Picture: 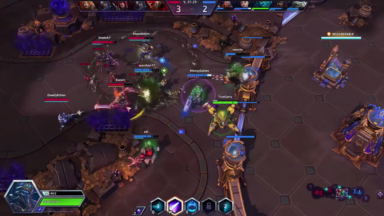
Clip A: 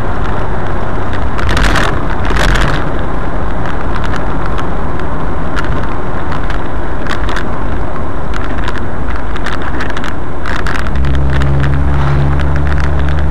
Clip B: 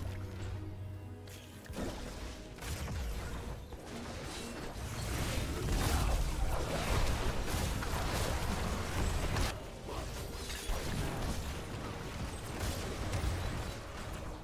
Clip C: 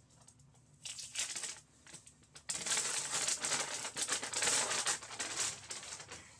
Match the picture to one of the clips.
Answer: B